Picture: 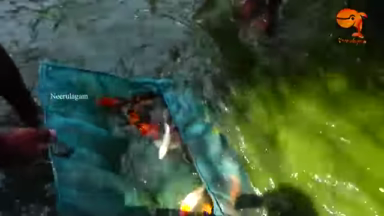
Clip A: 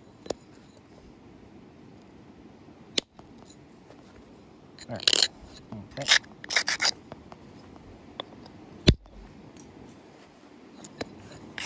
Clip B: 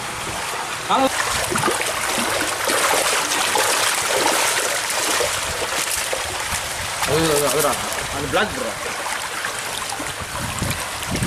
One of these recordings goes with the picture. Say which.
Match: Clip B